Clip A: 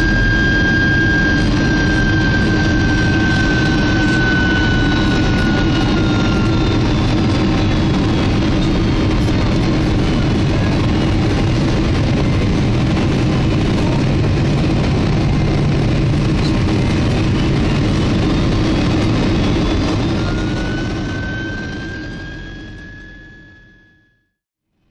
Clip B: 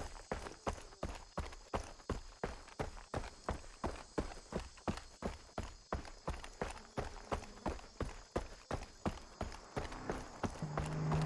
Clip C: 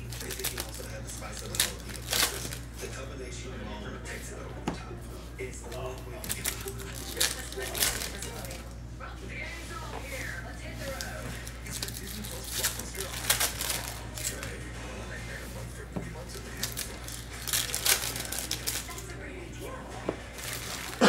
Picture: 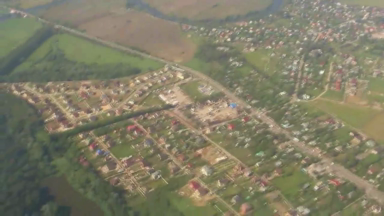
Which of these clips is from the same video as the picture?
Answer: A